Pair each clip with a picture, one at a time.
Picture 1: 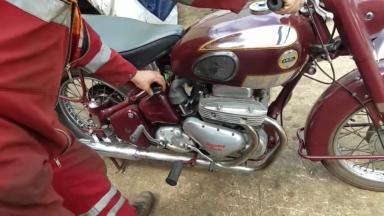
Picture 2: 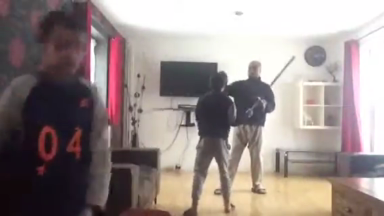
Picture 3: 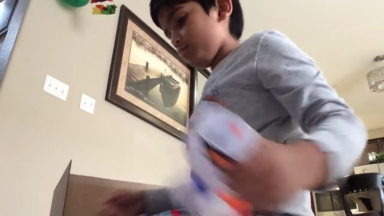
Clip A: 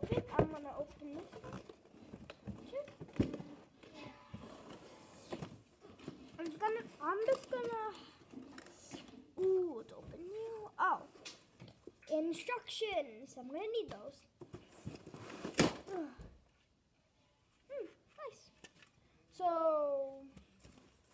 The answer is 3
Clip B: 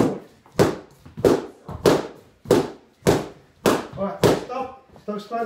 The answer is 2